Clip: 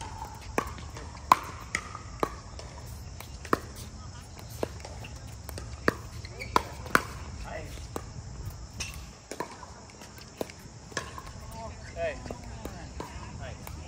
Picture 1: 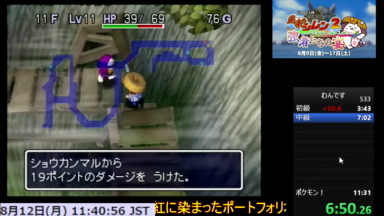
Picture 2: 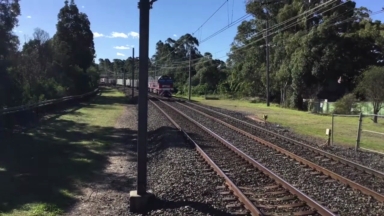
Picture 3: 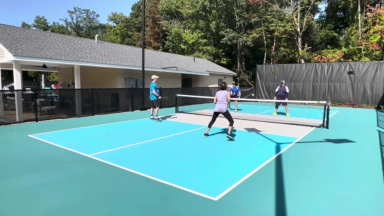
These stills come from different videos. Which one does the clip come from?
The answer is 3